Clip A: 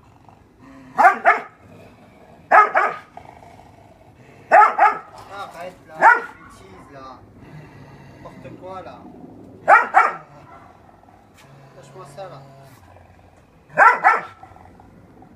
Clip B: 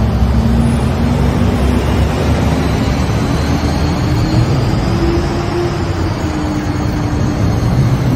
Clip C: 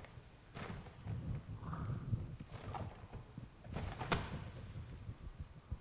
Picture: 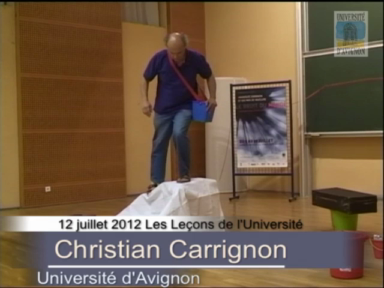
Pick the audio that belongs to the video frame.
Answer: C